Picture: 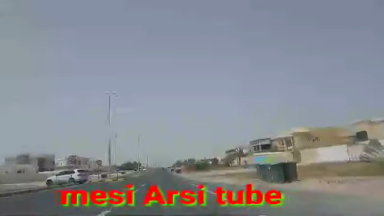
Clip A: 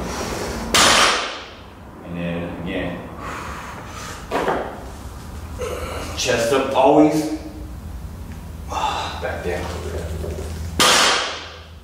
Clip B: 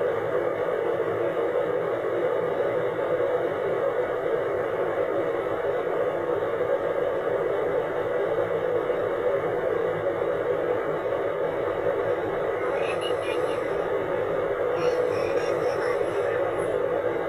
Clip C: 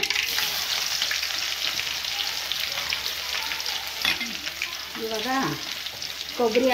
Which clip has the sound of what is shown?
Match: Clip B